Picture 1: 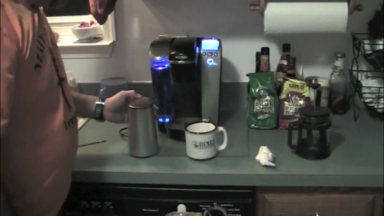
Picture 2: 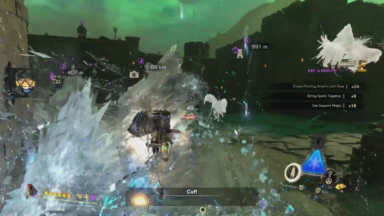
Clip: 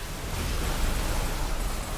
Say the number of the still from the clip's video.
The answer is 2